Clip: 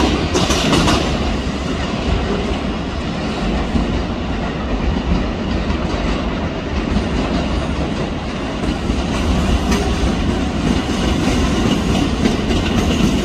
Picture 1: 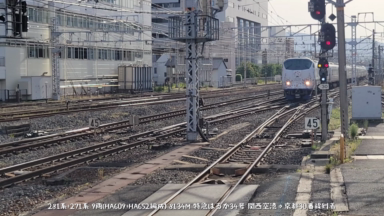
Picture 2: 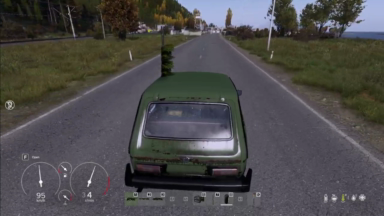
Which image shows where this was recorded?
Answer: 1